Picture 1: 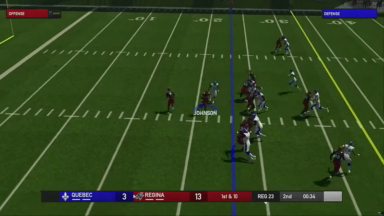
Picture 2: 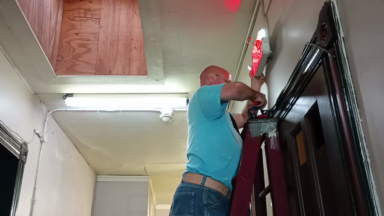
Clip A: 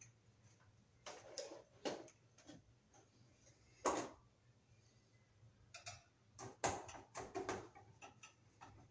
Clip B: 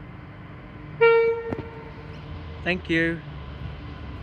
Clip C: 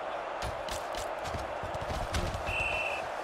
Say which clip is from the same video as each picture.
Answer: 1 C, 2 A